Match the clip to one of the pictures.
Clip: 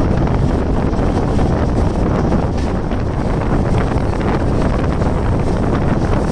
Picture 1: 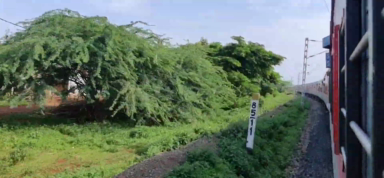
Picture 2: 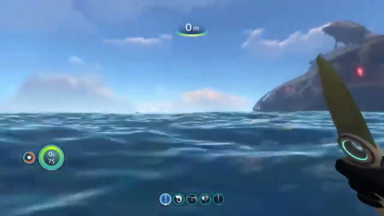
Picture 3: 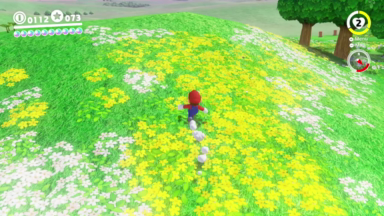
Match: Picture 1